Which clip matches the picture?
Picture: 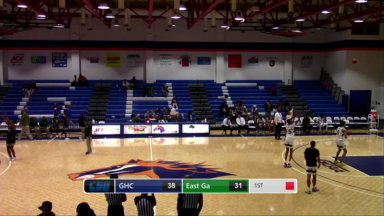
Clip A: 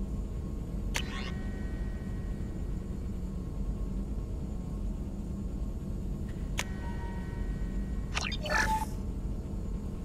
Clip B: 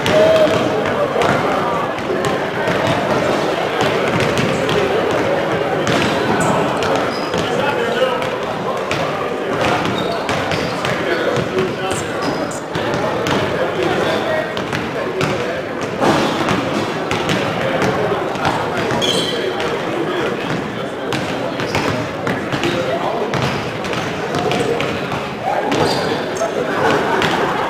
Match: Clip B